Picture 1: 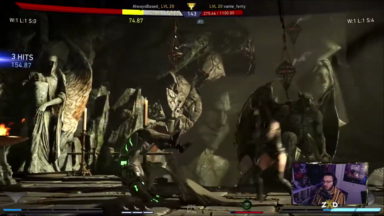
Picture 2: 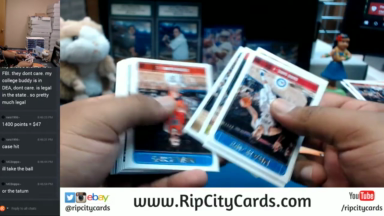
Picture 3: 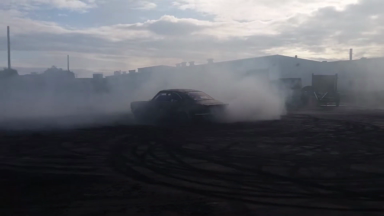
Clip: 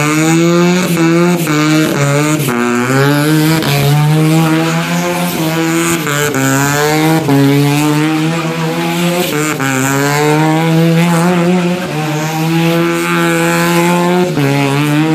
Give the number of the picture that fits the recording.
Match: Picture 3